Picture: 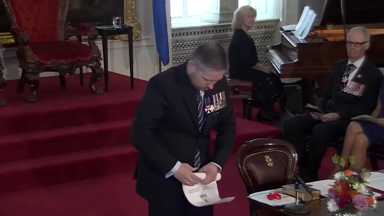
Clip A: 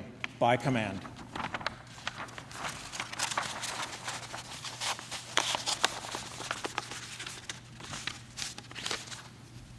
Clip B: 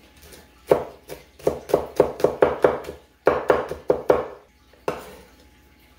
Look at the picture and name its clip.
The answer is A